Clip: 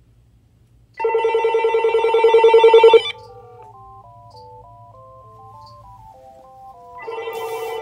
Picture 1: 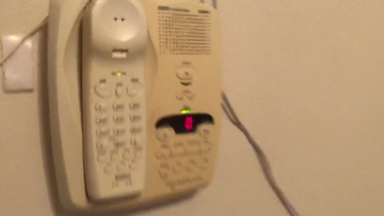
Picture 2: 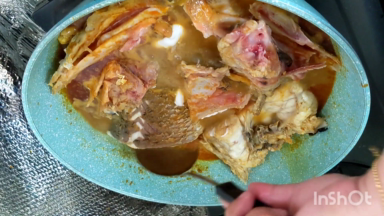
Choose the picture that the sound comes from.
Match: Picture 1